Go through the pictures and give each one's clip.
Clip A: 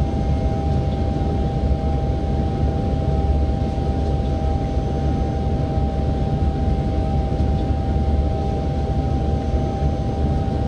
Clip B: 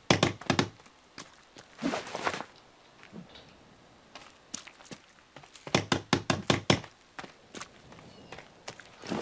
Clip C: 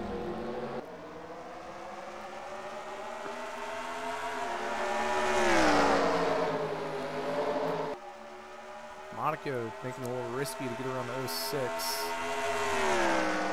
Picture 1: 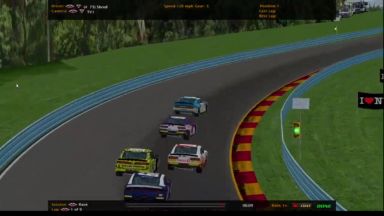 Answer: C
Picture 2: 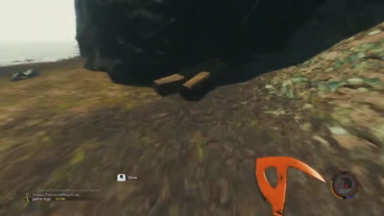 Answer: B